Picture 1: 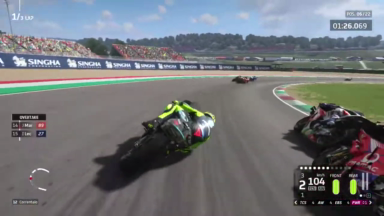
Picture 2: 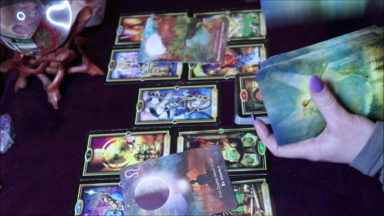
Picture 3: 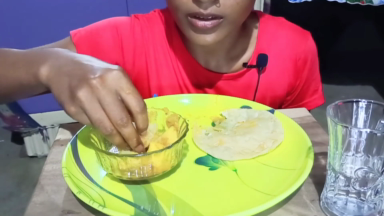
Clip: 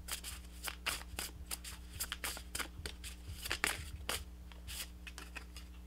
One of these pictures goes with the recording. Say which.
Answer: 2